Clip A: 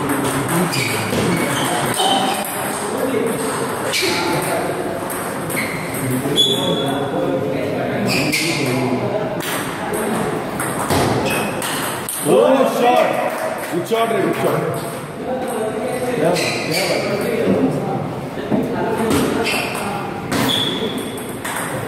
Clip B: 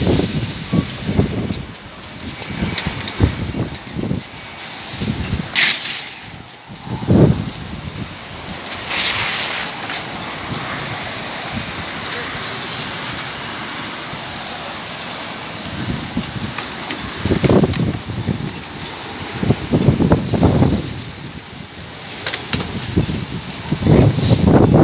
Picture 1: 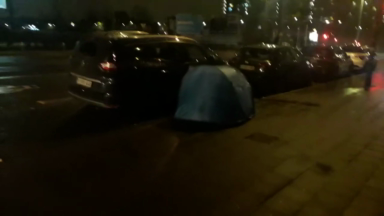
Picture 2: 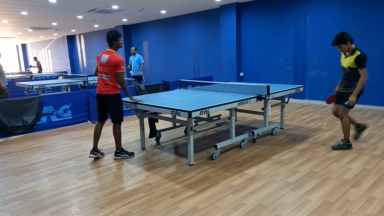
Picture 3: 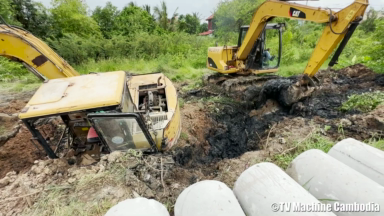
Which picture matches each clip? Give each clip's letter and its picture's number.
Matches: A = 2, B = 1